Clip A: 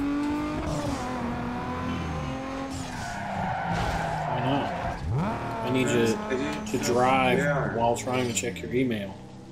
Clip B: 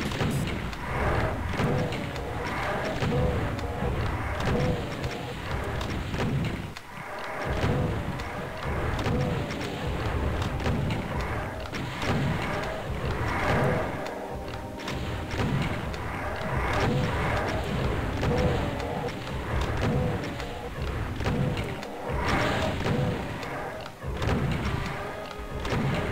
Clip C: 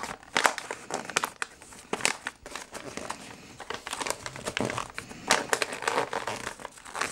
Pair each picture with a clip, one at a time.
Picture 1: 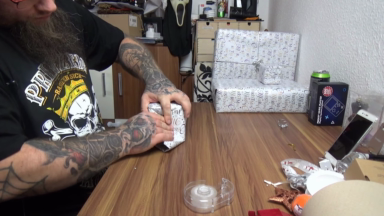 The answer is C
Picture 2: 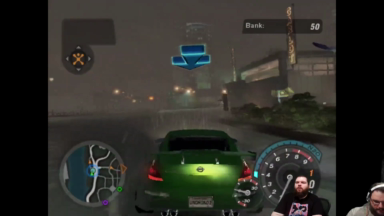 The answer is A